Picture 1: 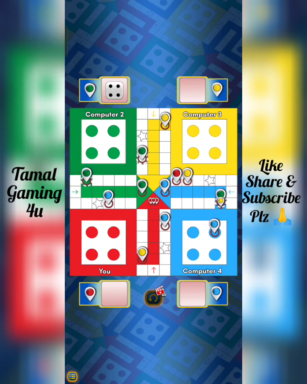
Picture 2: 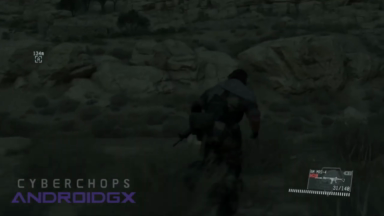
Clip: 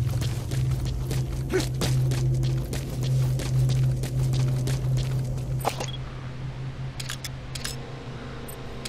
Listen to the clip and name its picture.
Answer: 2